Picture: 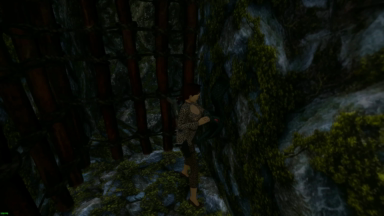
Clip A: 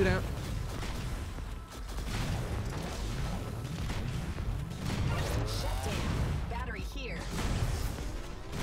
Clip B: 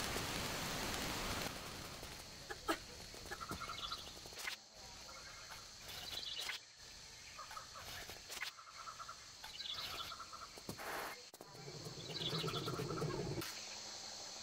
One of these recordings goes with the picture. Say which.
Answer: B